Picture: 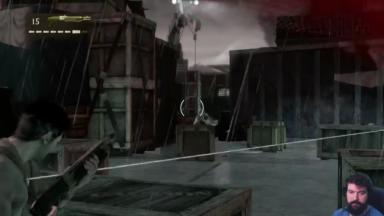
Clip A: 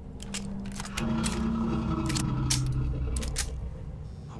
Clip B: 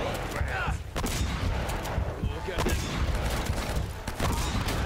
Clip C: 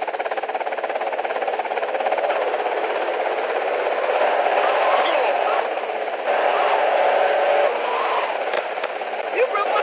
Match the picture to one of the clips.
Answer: B